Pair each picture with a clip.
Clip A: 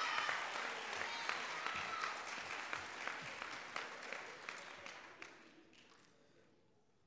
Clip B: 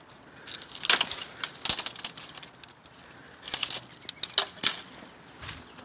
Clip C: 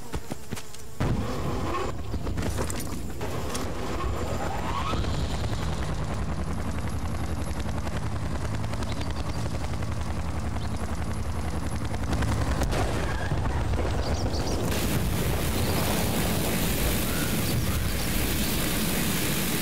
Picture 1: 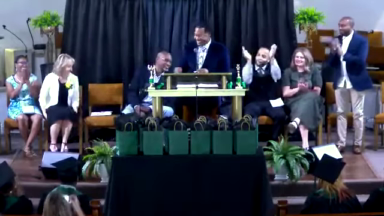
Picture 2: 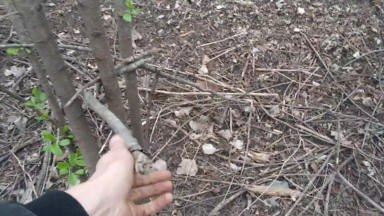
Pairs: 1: A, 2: B